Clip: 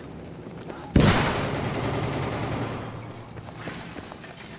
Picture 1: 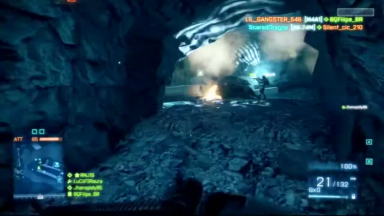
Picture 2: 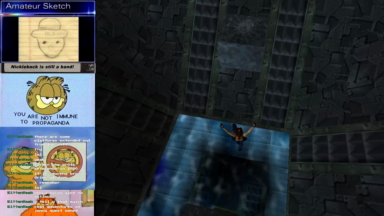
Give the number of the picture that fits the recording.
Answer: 1